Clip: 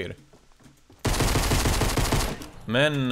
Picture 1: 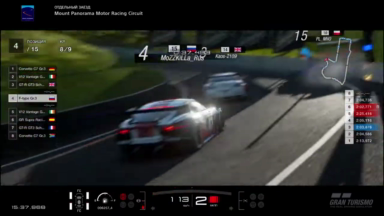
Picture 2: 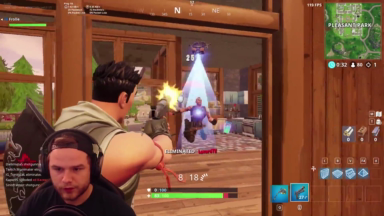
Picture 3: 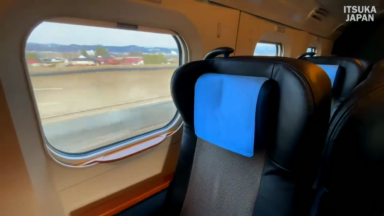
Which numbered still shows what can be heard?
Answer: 2